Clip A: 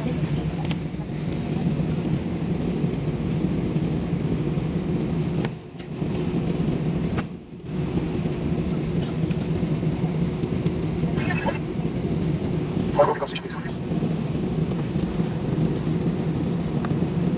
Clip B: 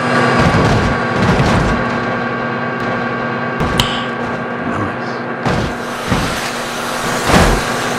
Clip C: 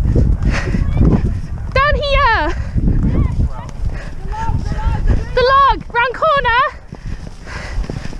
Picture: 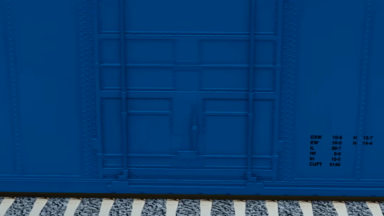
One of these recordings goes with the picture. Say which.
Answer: B